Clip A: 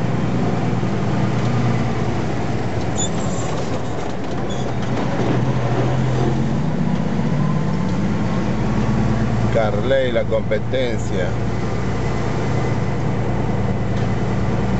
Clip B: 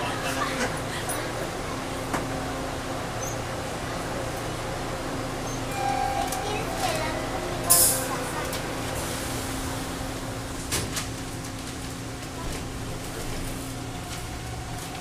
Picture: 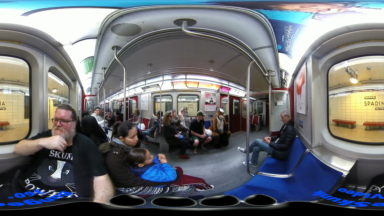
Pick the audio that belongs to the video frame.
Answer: B